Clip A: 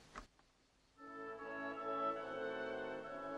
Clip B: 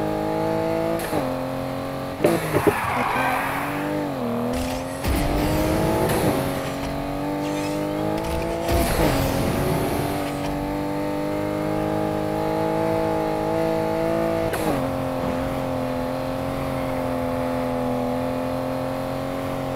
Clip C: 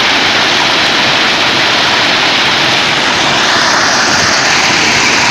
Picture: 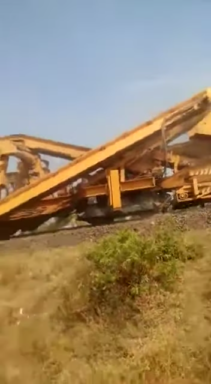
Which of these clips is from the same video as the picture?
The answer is C